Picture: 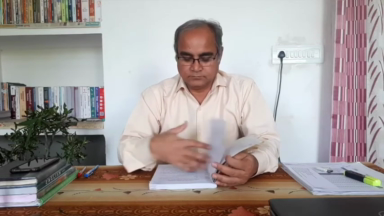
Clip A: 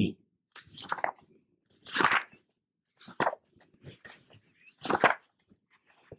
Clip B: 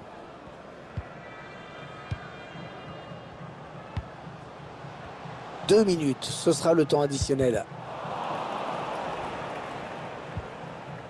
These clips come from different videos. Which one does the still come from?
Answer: A